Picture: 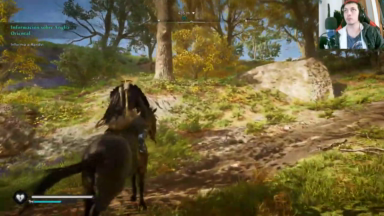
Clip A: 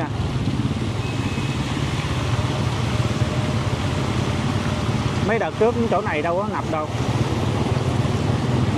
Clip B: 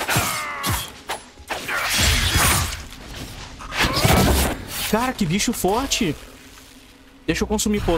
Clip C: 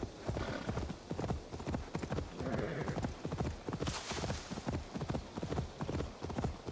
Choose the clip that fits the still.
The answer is C